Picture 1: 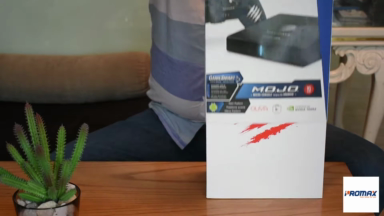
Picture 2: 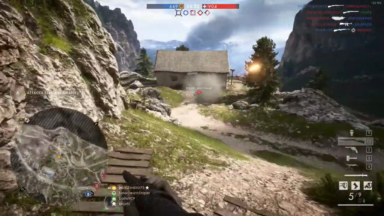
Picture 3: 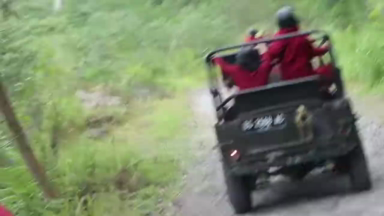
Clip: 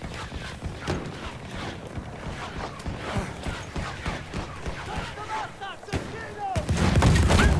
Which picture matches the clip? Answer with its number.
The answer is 2